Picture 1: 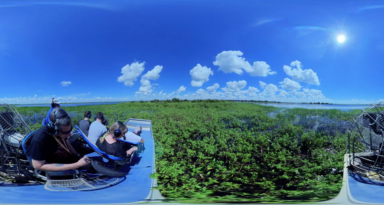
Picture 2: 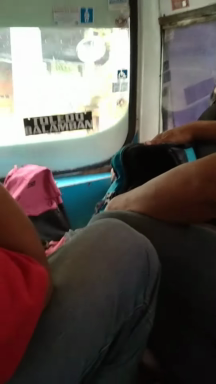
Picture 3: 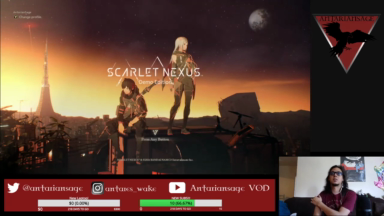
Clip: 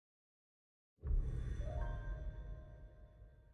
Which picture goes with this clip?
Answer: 3